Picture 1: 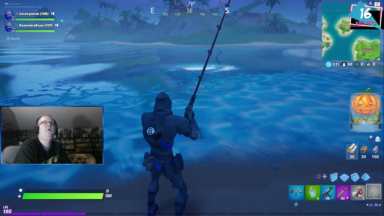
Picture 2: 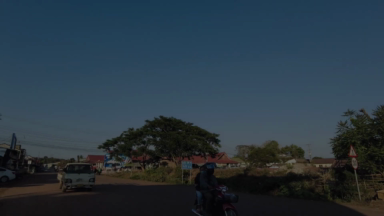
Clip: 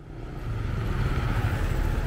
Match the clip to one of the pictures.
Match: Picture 2